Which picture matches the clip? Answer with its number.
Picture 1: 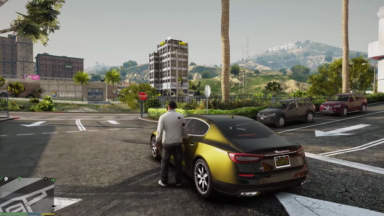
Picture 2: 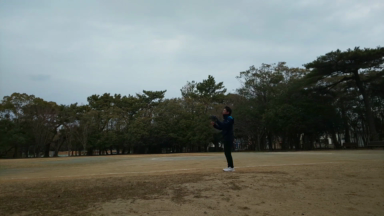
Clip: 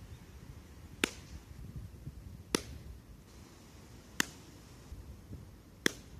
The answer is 2